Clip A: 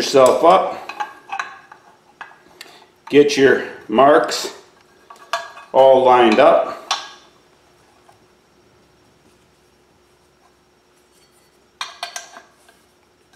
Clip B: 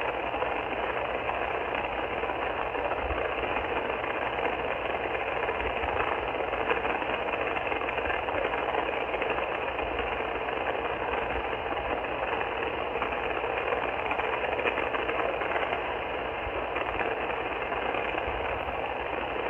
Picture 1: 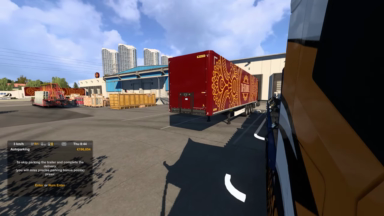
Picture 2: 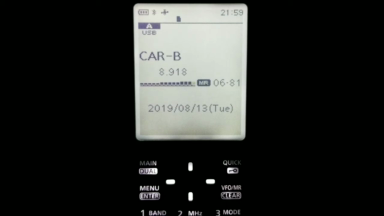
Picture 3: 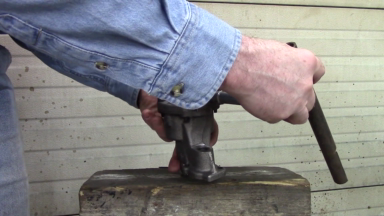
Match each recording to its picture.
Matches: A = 3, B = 2